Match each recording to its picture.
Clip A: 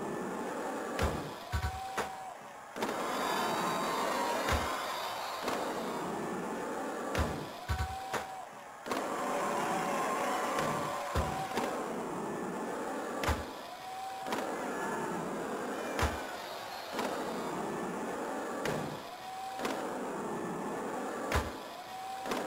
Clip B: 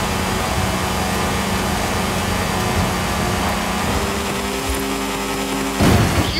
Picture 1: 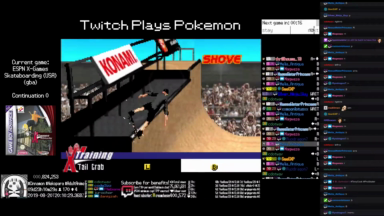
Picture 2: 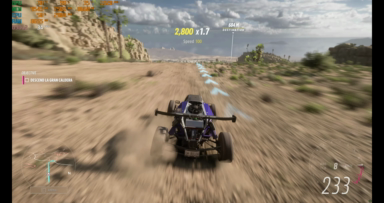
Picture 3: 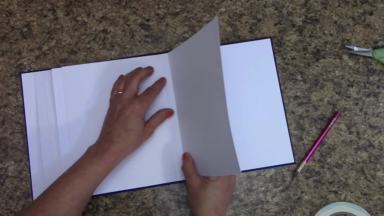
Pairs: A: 1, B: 2